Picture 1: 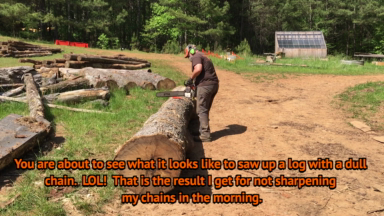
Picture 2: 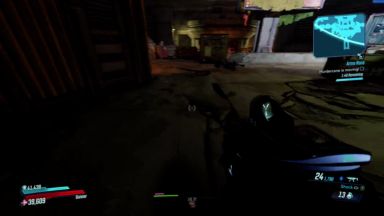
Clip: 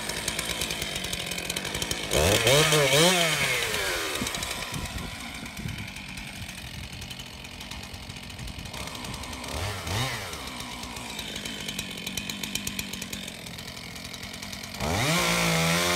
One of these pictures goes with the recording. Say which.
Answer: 1